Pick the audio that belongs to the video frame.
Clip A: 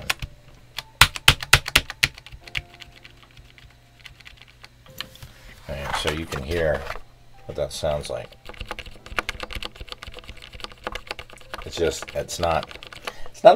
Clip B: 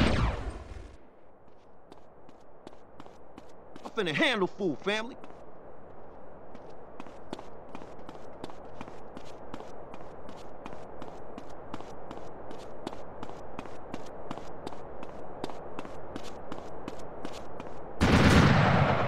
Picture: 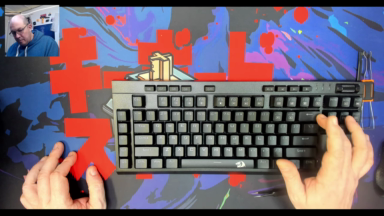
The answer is A